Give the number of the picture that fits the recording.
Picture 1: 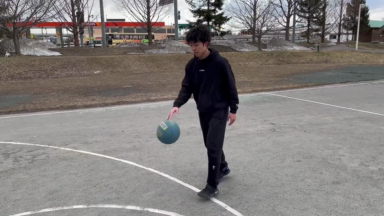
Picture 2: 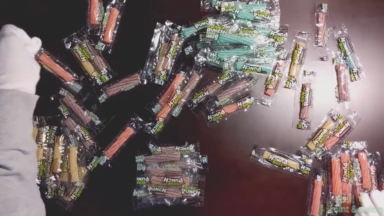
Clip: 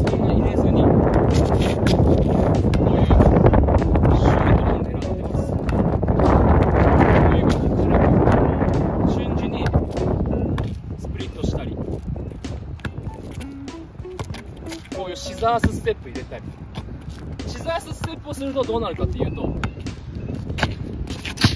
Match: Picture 1